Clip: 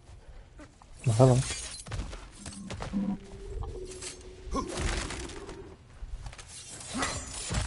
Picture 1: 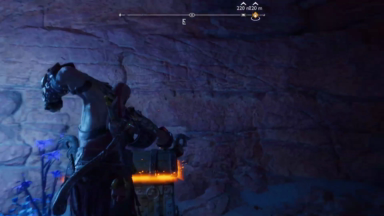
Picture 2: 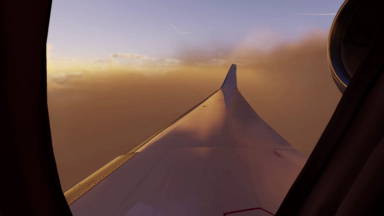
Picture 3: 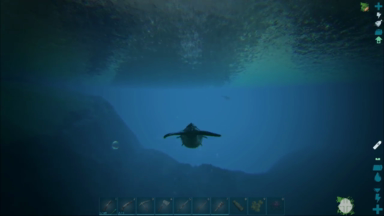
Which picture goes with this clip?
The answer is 1